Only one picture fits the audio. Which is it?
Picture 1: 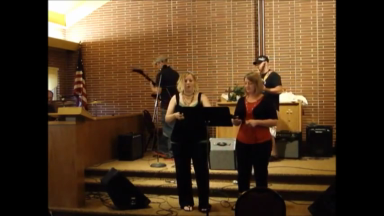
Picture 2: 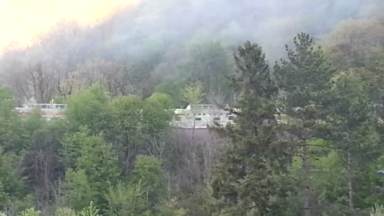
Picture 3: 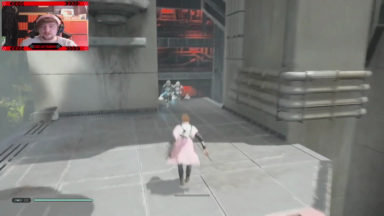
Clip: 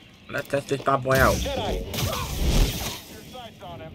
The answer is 3